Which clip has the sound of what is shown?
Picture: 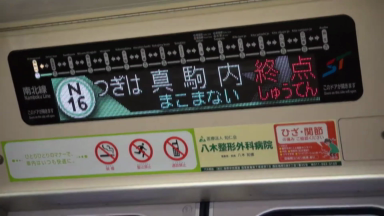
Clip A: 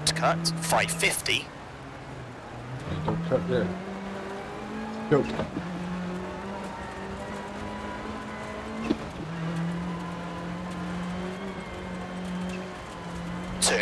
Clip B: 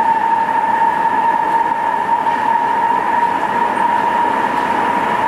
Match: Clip B